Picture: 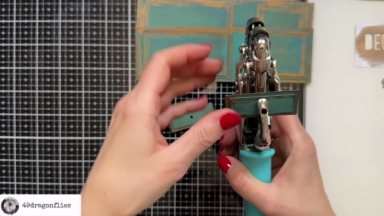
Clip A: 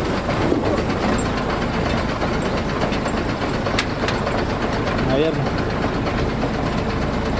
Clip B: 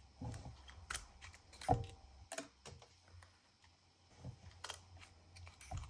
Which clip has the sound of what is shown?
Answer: B